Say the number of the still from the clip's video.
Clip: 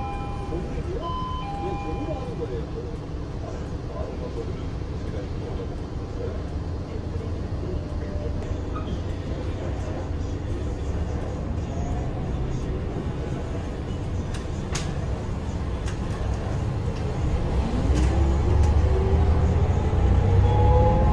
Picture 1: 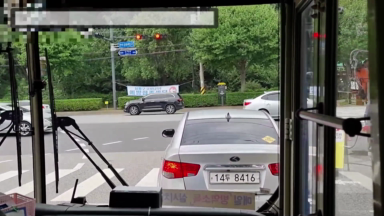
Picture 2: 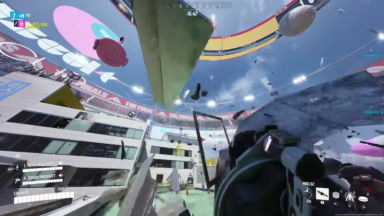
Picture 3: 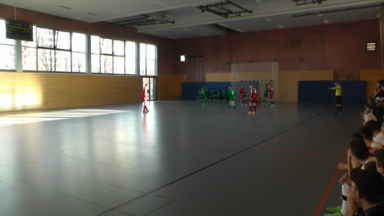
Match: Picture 1